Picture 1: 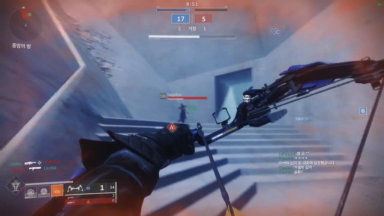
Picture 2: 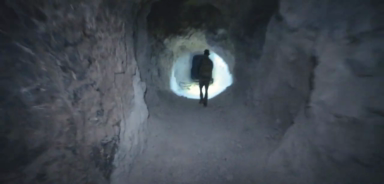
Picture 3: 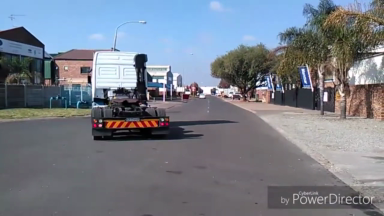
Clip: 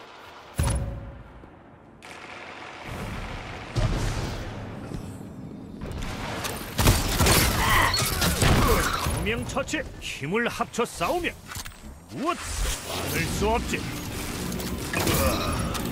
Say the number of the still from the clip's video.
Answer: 1